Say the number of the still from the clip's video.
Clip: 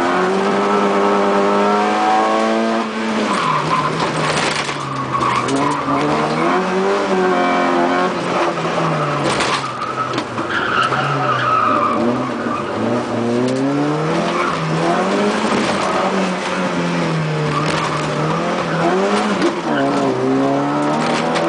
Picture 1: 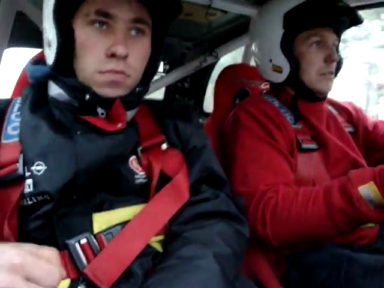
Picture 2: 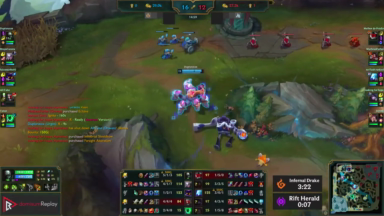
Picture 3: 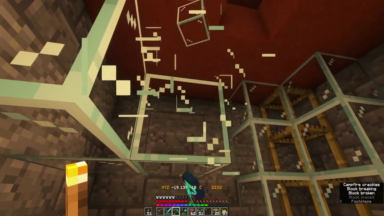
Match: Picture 1